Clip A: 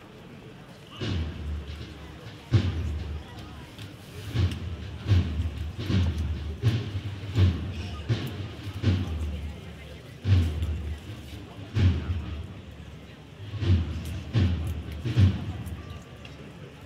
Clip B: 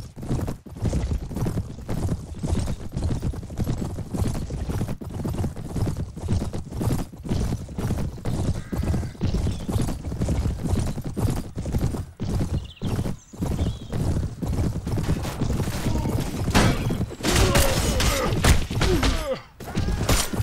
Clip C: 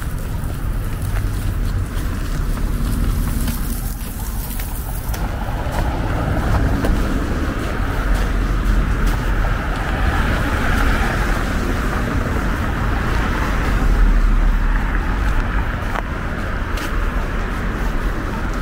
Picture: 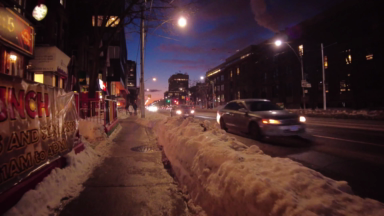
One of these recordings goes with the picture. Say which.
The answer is C